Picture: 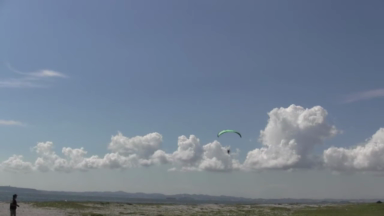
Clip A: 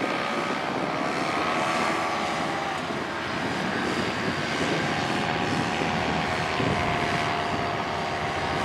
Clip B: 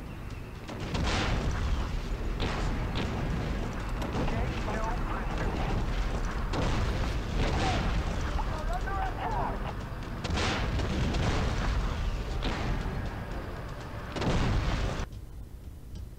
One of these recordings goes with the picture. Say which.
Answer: A